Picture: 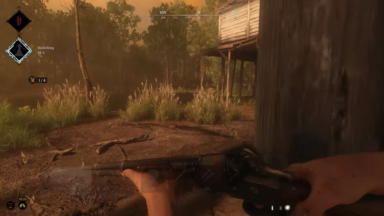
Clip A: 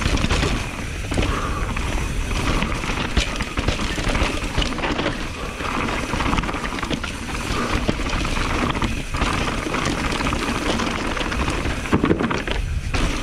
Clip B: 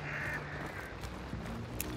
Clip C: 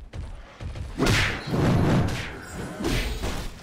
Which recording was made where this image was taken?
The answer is B